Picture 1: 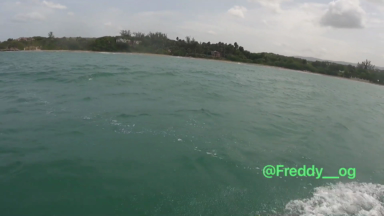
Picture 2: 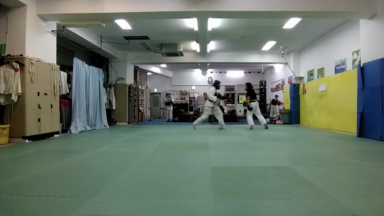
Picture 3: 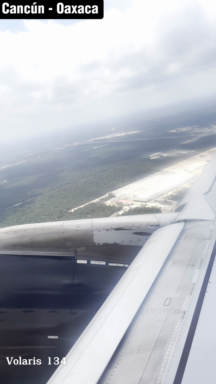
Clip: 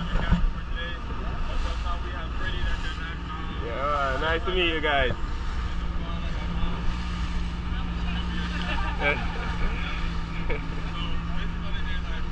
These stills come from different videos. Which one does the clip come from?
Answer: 1